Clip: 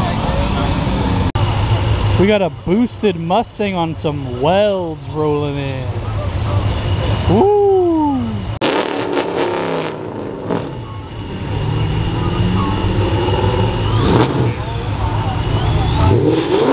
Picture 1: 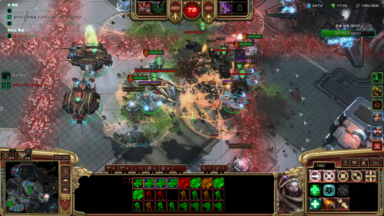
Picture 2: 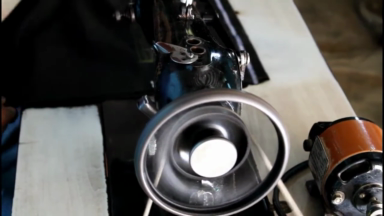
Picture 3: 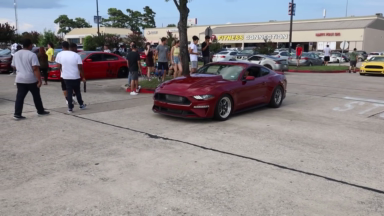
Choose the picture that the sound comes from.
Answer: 3